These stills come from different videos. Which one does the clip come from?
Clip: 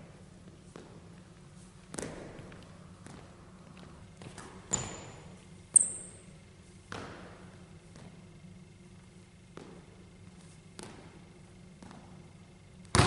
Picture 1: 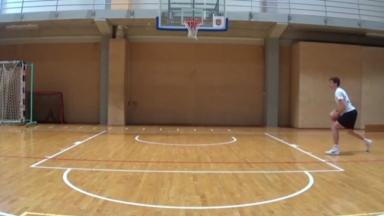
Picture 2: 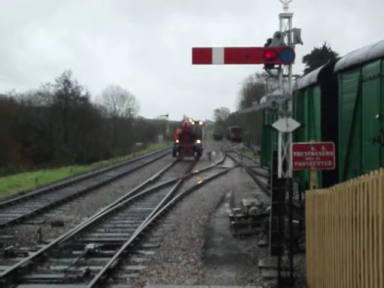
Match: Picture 1